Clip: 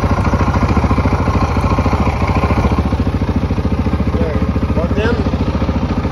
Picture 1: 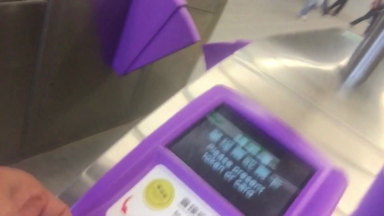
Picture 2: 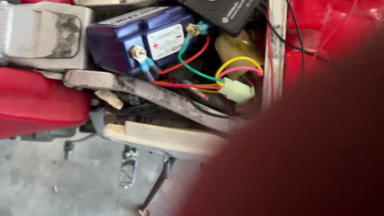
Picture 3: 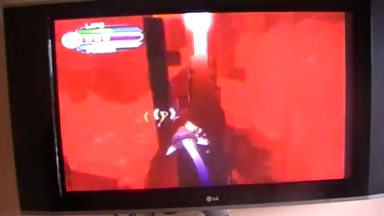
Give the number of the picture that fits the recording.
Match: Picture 2